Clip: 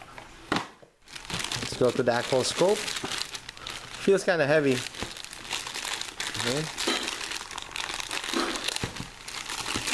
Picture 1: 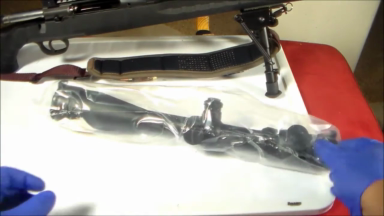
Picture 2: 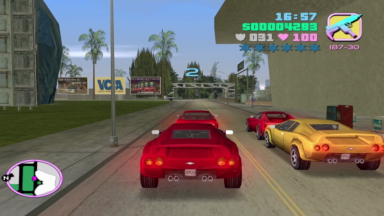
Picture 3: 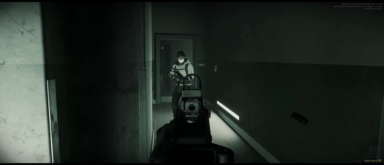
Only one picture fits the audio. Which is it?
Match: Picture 1